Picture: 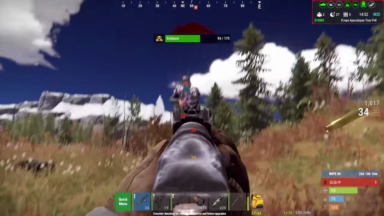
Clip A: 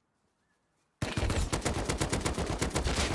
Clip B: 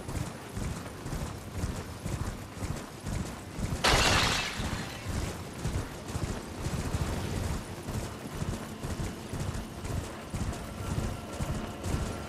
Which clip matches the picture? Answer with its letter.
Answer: A